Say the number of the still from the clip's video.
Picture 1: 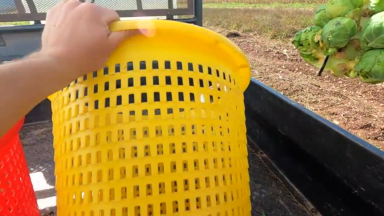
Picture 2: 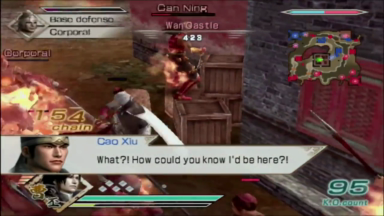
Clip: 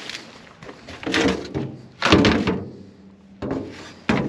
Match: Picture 1